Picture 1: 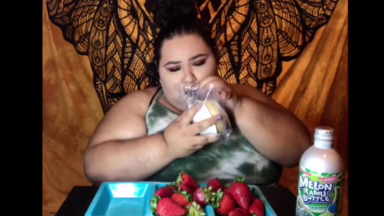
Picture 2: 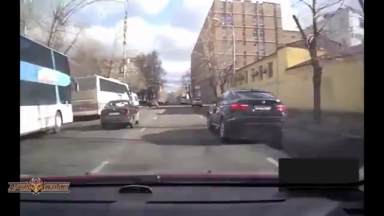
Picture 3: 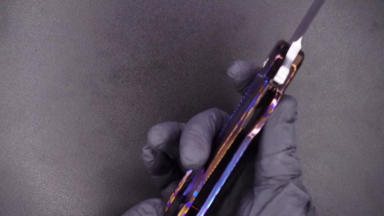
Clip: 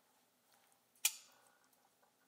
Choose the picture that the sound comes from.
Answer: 3